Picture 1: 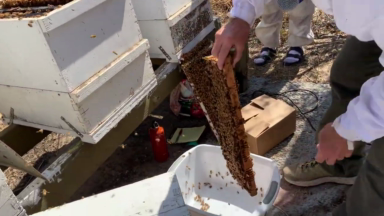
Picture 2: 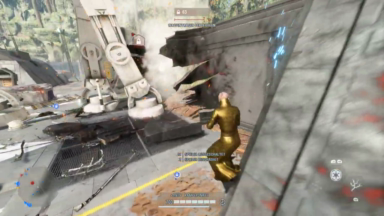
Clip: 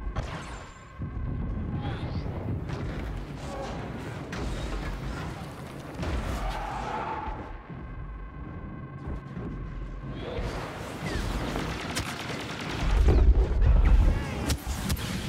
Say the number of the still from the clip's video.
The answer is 2